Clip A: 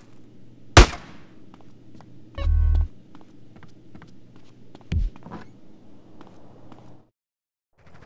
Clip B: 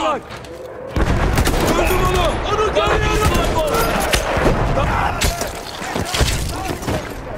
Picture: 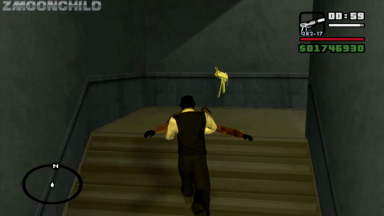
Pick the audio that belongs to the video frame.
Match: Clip A